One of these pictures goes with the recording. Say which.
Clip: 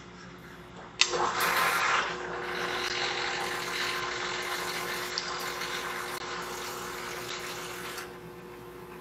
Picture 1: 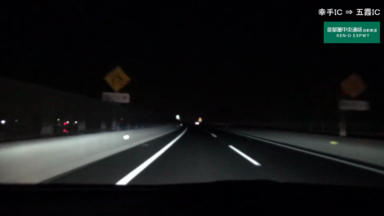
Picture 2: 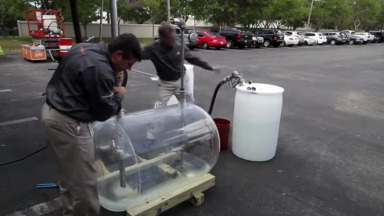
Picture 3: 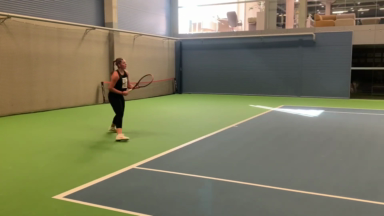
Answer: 2